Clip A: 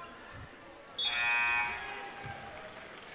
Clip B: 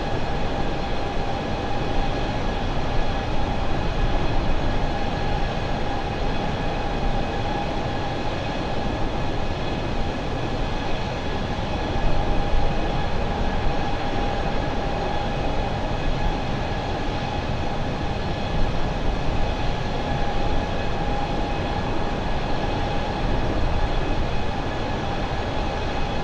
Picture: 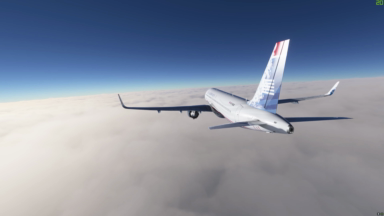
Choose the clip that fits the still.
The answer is B